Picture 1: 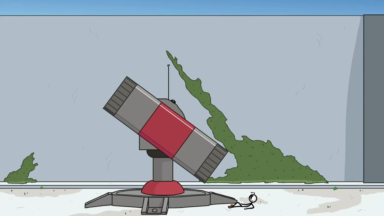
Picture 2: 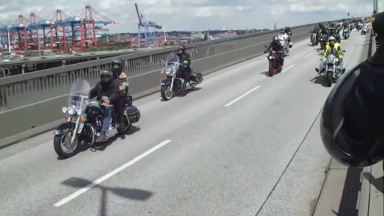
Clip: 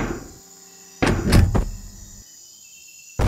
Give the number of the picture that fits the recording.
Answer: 1